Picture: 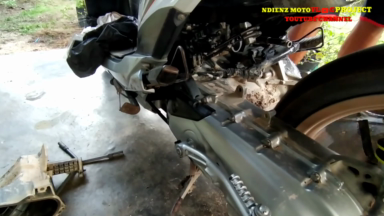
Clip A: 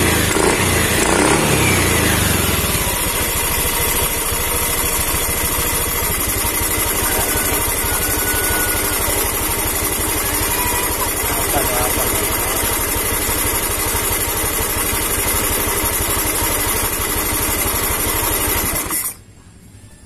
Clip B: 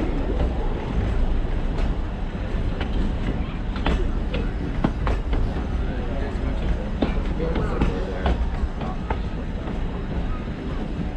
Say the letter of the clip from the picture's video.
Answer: A